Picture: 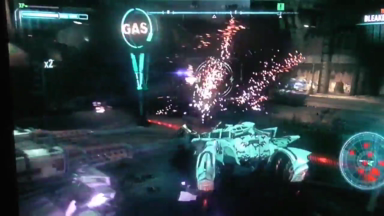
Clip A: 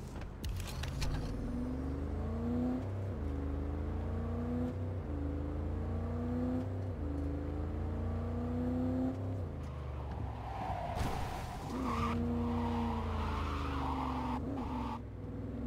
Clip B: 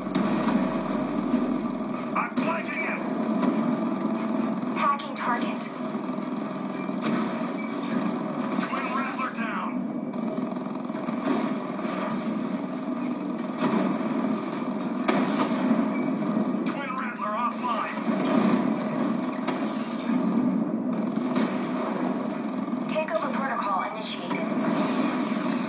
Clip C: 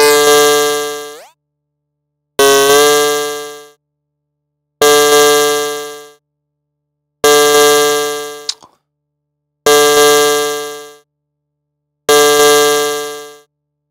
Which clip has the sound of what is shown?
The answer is B